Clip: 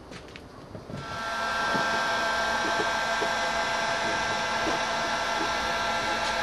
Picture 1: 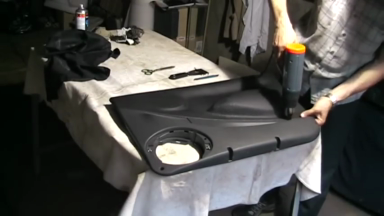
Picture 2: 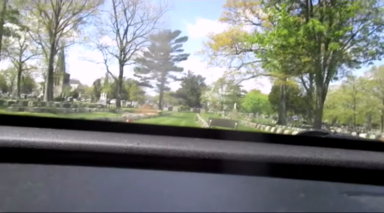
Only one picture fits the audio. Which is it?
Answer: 1